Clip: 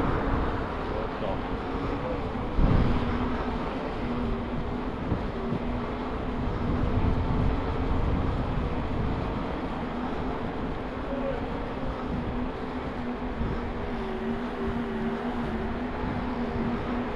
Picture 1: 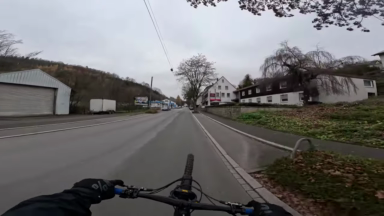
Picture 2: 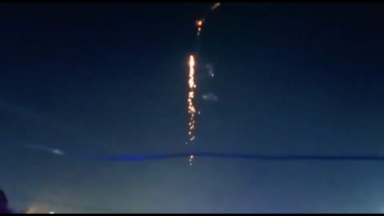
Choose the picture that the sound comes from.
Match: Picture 1